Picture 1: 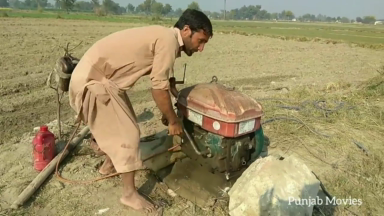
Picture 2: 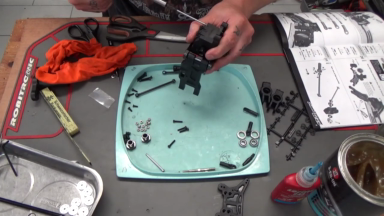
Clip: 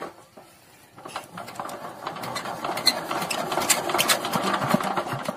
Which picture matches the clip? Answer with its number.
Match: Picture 1